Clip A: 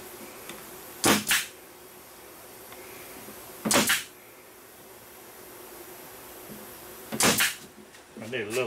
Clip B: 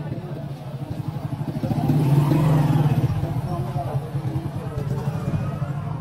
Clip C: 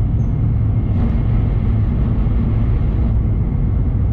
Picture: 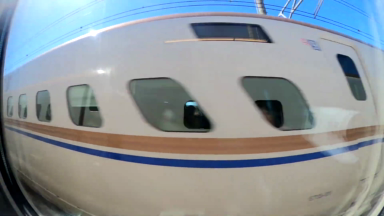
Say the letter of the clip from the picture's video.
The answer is C